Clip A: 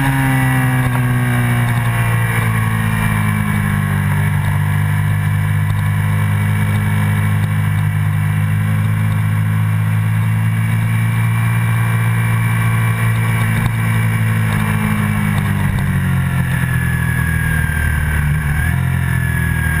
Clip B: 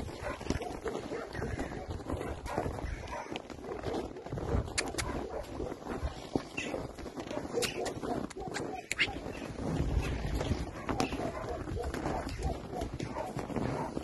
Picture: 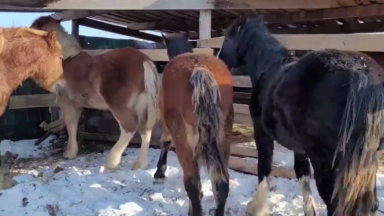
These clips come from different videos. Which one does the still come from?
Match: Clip B